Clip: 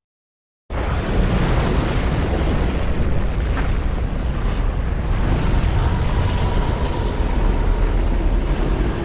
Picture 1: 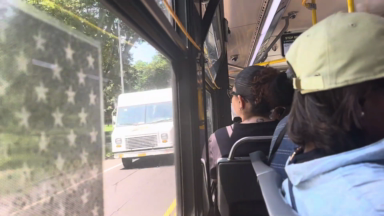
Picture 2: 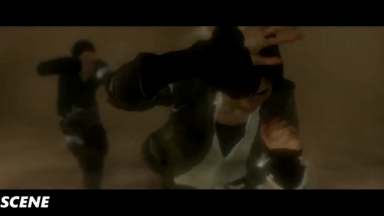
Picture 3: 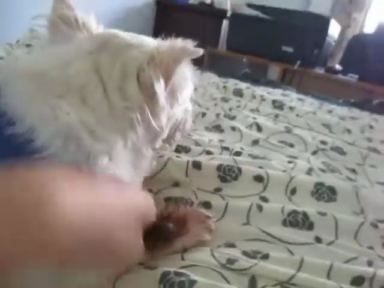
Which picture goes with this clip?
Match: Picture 2